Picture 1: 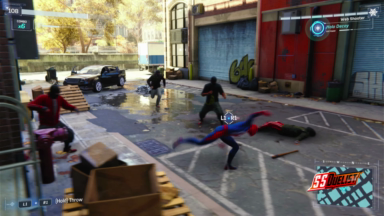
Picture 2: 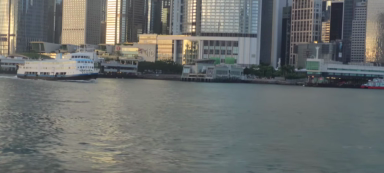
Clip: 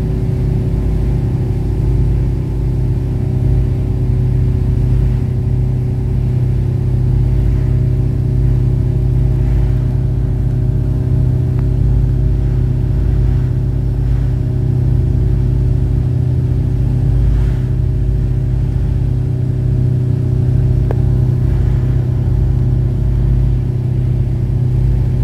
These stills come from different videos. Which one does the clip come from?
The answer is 2